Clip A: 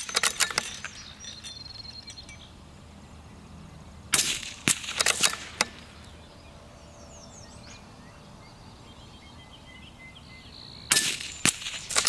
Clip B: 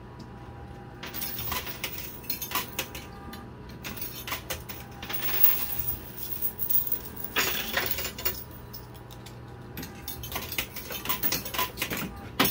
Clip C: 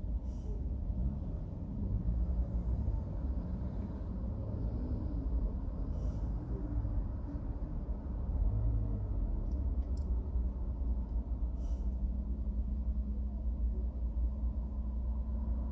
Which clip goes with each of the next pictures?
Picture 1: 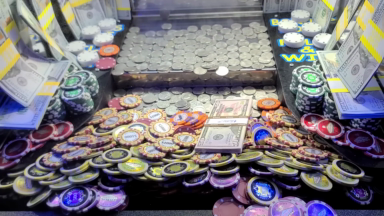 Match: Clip B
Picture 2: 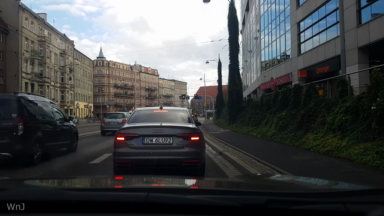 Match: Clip C